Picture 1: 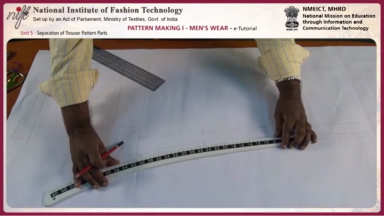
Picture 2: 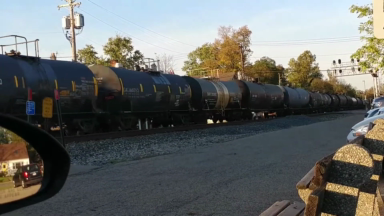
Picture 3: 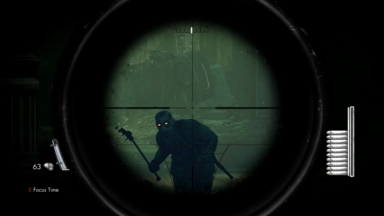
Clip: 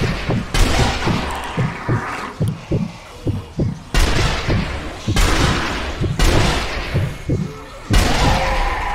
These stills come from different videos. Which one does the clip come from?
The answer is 3